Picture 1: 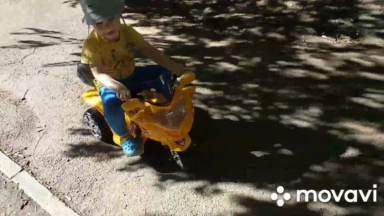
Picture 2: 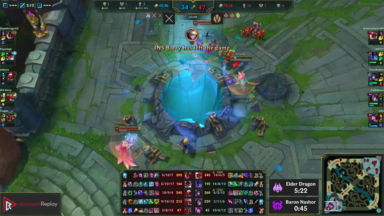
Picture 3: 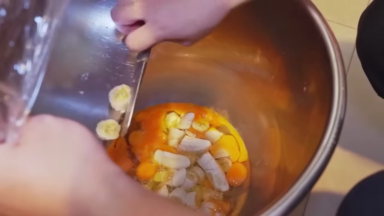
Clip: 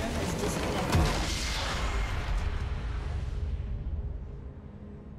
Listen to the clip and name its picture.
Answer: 2